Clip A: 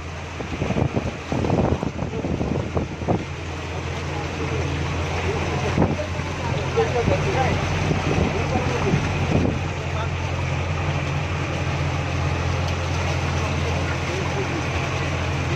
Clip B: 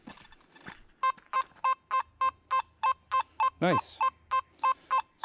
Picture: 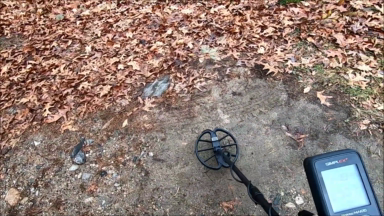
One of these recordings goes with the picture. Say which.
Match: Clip B